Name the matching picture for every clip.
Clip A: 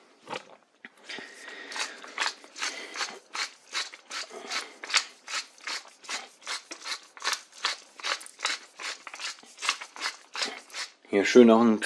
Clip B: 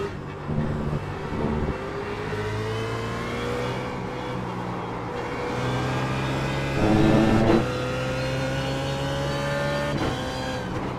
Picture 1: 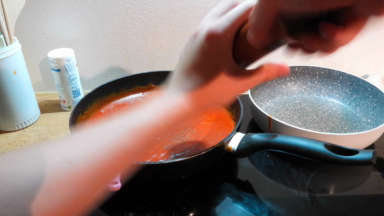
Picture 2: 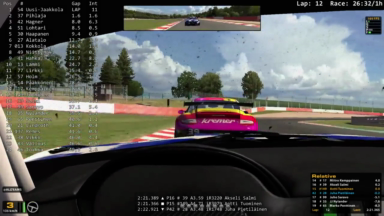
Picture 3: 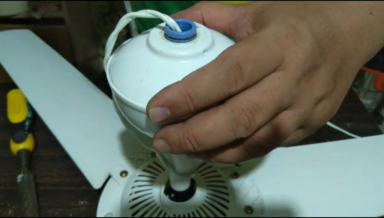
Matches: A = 1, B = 2